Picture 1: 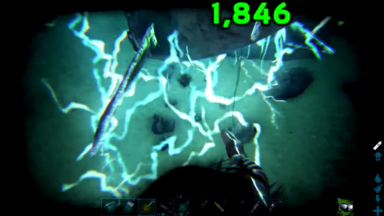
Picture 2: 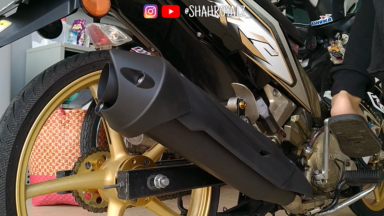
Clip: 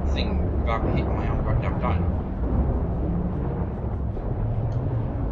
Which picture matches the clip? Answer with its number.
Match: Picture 1